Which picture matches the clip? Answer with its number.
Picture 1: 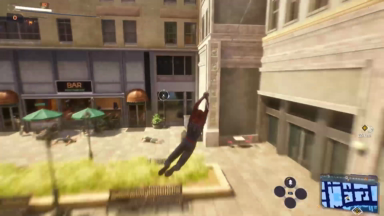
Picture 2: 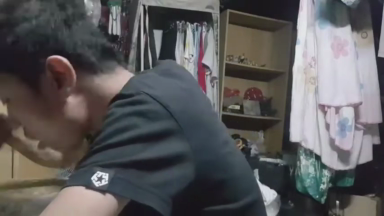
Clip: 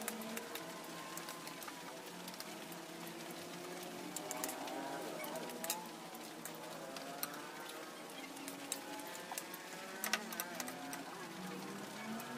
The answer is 2